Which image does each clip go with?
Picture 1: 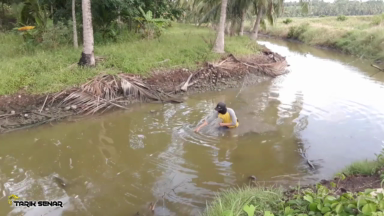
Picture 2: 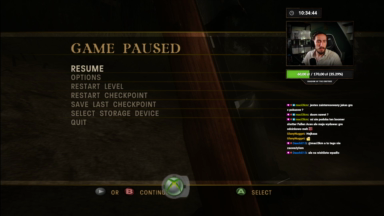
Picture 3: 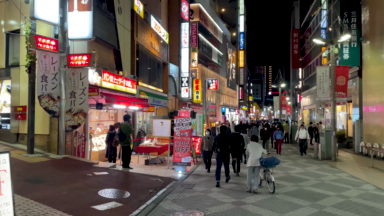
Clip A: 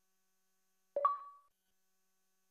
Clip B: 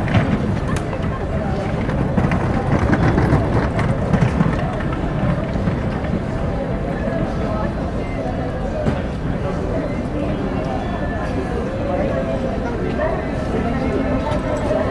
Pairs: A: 2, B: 3